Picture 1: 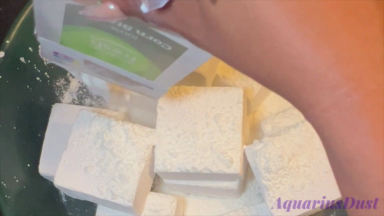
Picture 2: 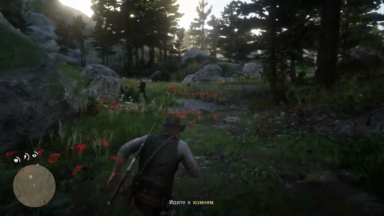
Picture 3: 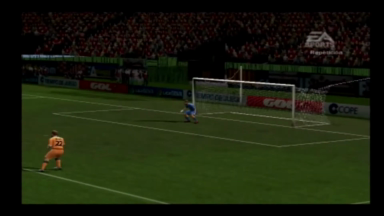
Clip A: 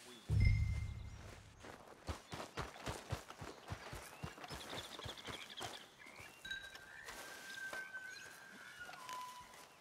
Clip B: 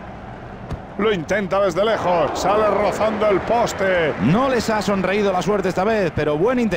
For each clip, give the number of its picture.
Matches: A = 2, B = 3